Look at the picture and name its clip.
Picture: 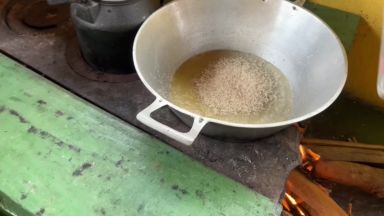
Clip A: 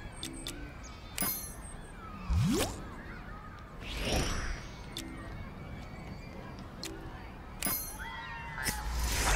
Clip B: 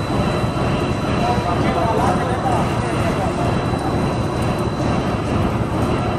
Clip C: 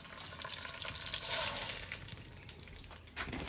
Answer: C